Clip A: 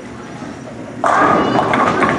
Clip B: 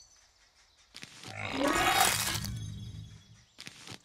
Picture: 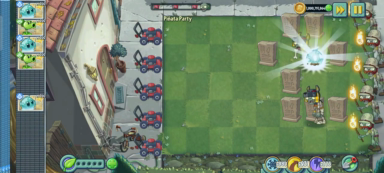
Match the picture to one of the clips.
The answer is B